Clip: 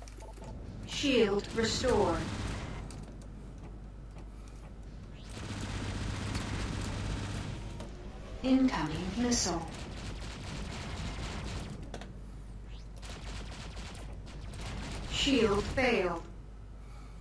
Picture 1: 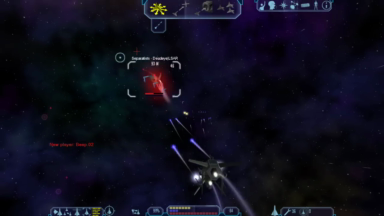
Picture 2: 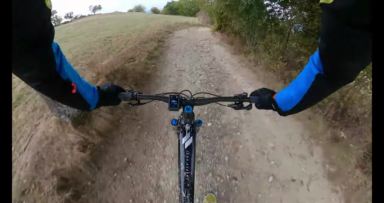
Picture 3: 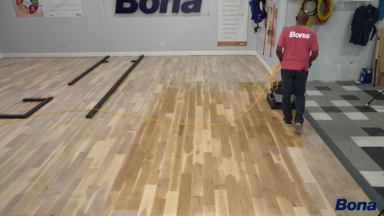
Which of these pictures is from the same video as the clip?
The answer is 1